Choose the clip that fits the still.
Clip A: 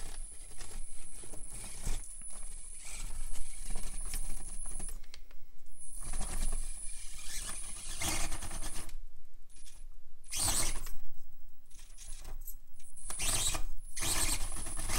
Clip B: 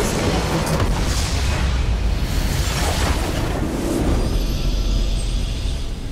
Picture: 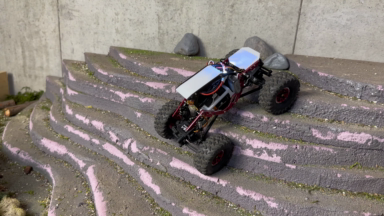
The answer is A